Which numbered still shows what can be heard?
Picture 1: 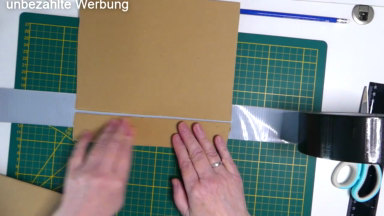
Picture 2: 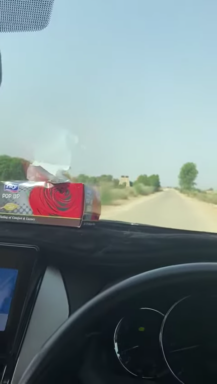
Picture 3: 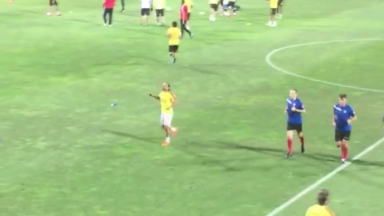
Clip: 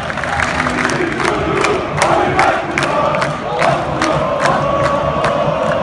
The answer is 3